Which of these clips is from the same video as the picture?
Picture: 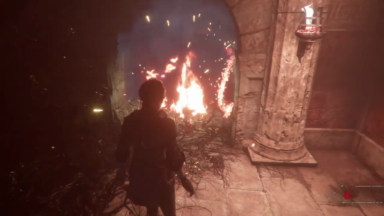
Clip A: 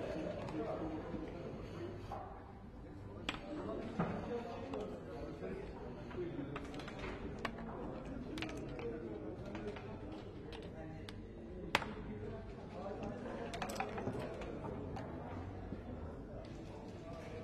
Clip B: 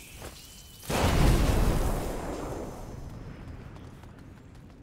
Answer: B